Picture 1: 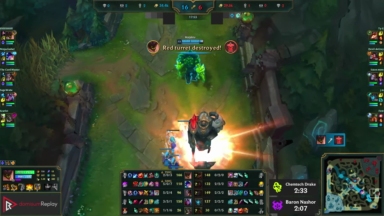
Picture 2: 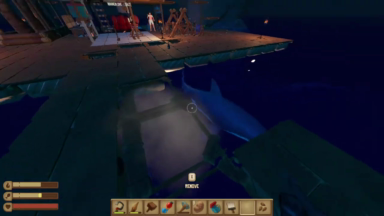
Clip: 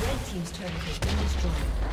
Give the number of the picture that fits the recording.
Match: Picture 1